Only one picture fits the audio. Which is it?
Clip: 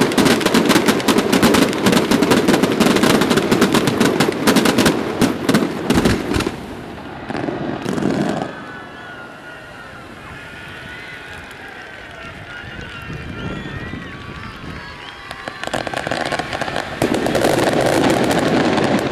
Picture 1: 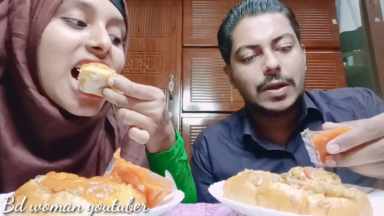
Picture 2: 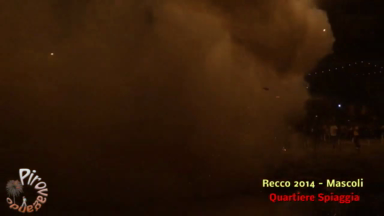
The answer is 2